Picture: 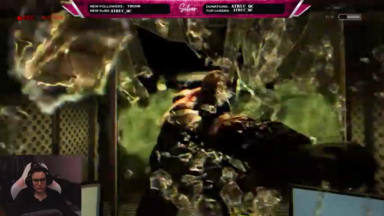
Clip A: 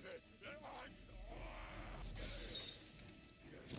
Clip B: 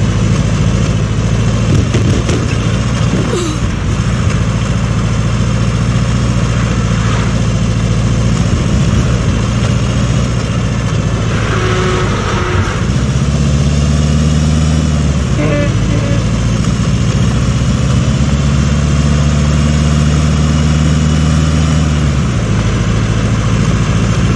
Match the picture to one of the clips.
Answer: A